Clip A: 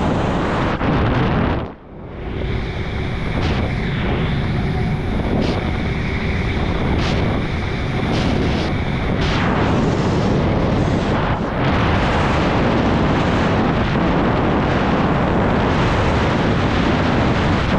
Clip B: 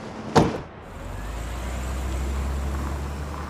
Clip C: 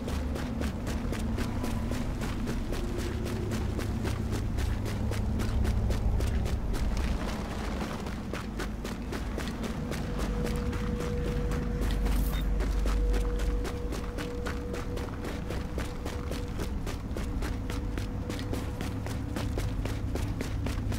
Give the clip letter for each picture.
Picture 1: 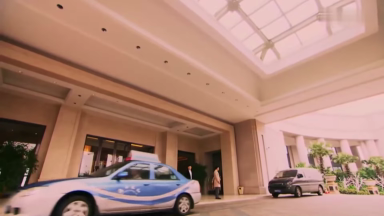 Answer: B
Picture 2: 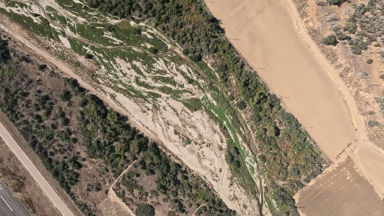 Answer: A